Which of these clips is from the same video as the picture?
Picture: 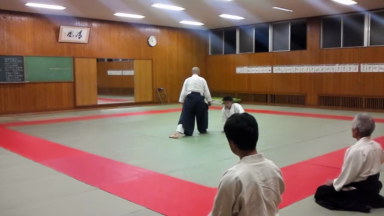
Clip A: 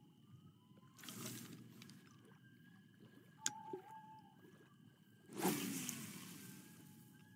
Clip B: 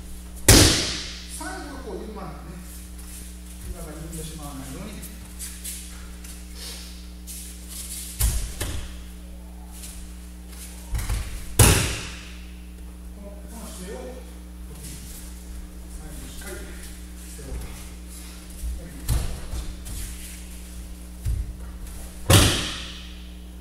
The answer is B